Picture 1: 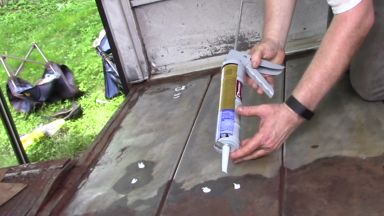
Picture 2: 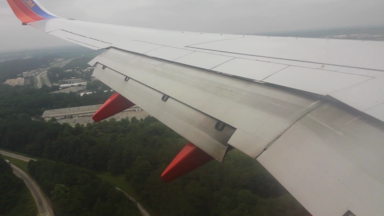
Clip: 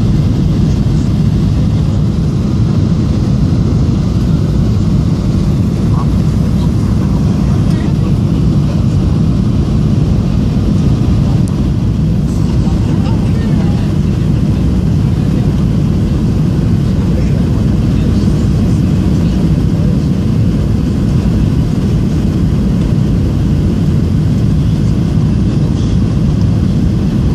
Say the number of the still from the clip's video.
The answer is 2